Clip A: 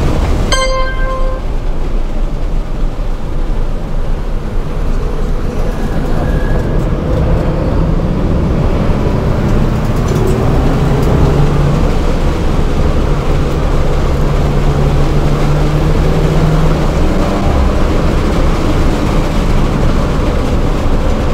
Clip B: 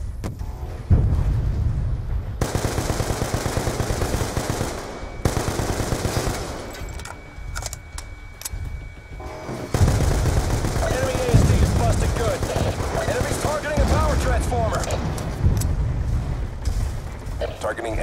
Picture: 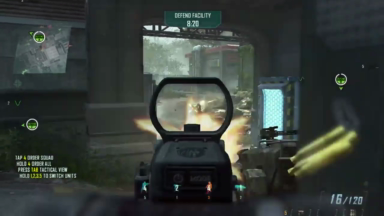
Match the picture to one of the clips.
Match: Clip B